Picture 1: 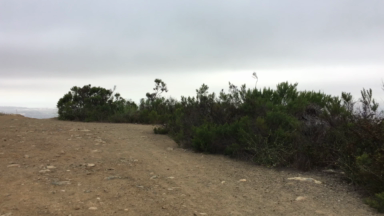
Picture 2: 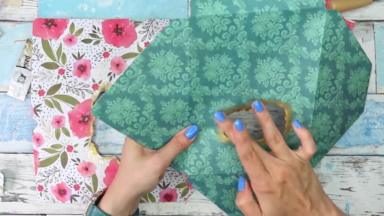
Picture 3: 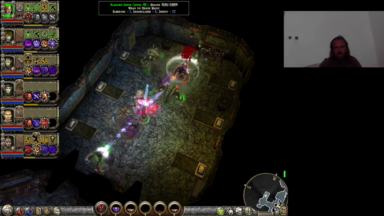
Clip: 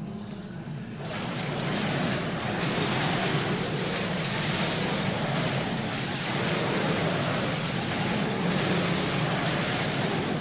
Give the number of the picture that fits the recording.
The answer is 3